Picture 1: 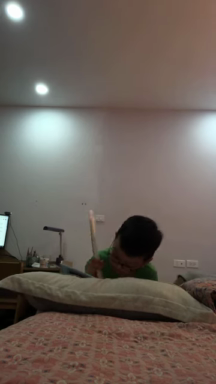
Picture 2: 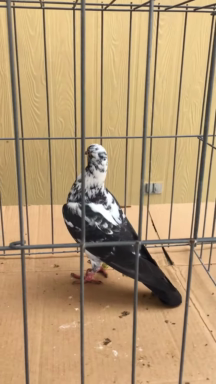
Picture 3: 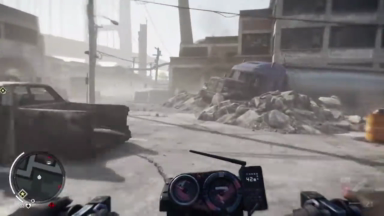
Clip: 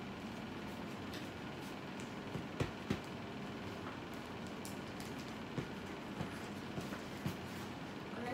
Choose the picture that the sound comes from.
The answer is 1